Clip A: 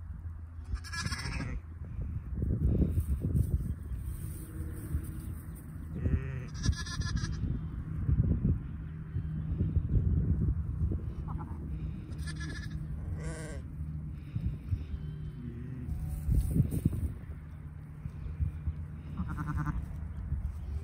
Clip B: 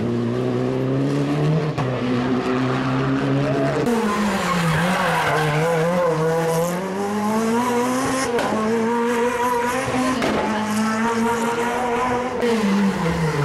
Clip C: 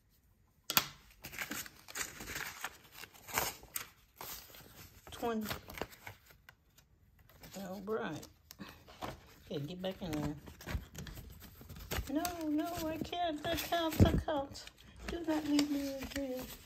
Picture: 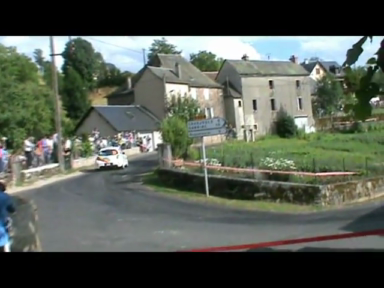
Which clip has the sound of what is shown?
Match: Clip B